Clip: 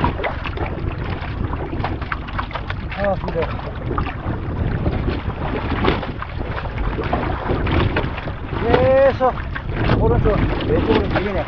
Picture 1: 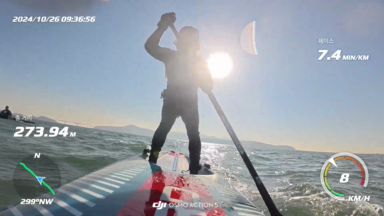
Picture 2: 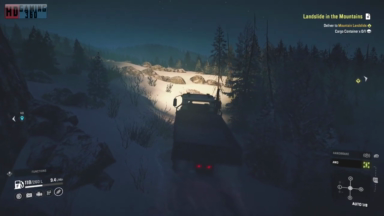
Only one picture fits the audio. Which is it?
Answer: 1